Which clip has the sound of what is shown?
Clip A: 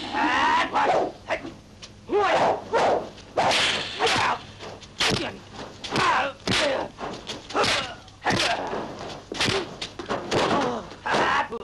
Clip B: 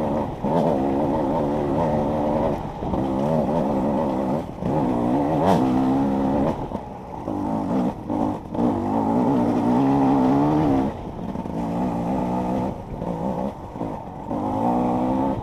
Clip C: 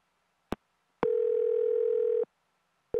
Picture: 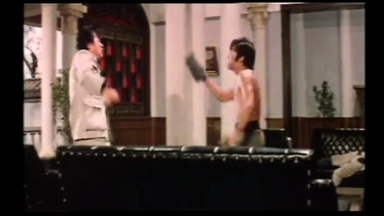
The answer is A